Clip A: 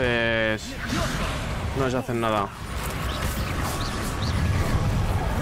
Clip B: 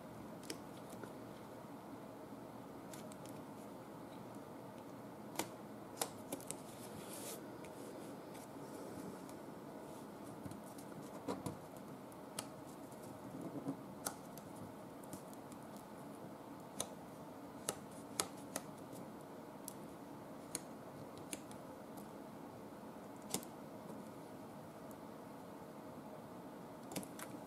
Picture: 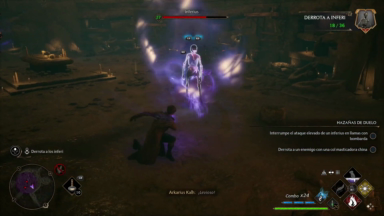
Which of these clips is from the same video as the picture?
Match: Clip A